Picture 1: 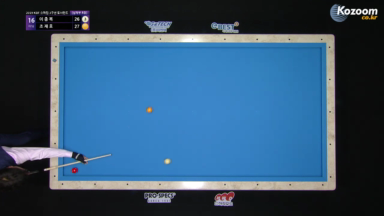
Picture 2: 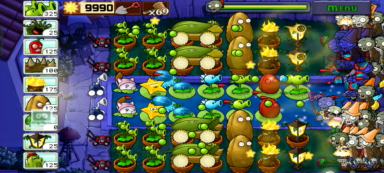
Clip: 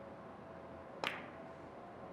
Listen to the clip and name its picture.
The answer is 1